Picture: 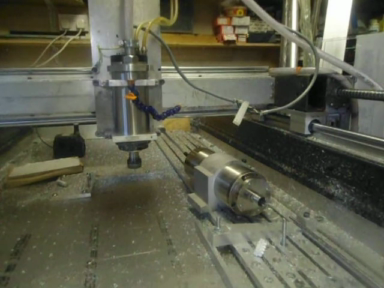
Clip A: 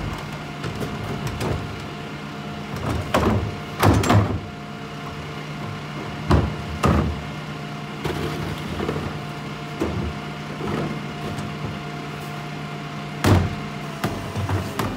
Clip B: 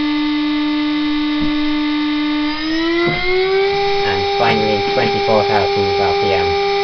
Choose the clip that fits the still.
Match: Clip B